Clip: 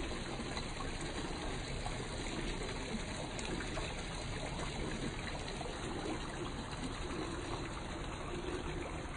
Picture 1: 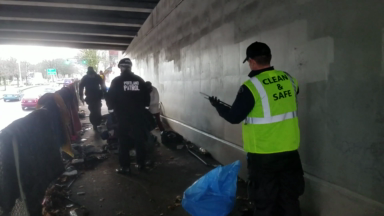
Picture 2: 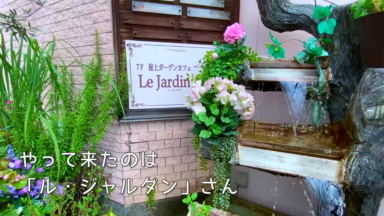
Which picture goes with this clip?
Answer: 2